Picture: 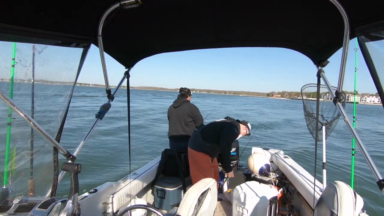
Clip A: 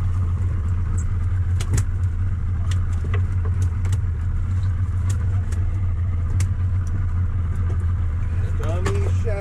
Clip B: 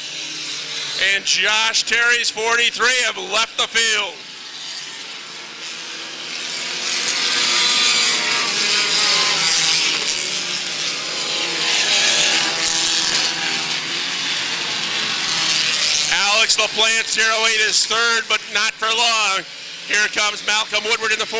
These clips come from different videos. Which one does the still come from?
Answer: A